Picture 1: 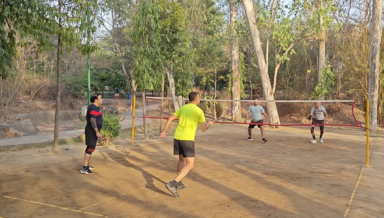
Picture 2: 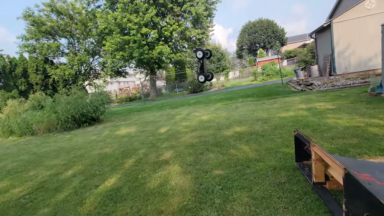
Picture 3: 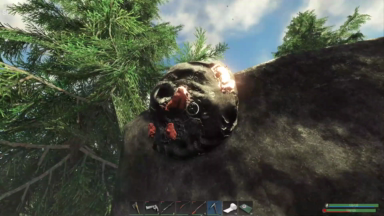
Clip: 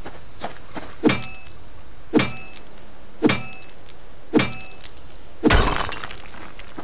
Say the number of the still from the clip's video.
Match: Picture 3